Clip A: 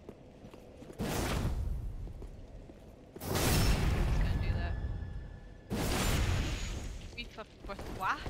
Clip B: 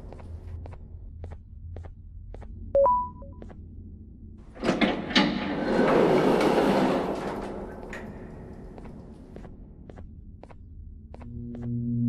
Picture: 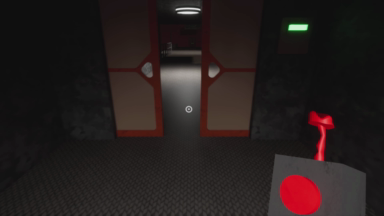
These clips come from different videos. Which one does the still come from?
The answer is B